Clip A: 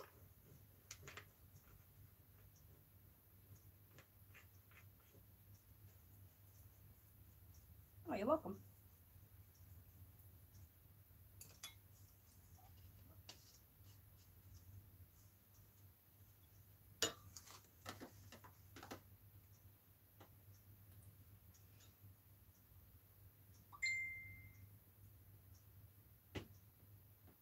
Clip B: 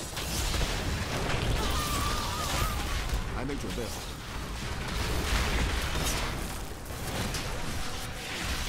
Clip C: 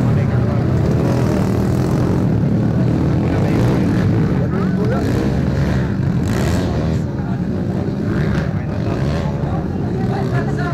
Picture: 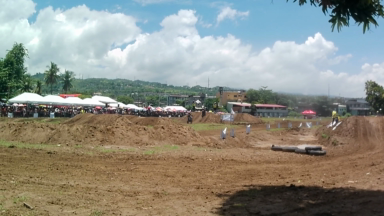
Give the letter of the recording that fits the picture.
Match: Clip C